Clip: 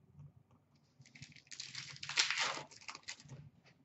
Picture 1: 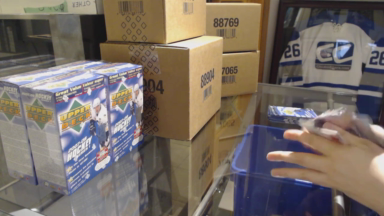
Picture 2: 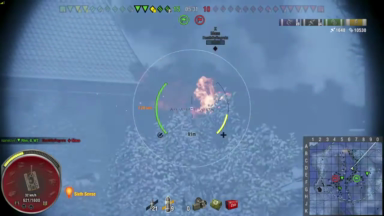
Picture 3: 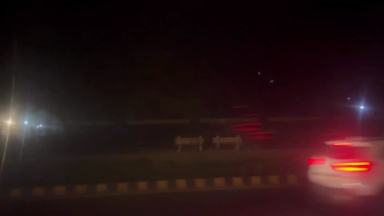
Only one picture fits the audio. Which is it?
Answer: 1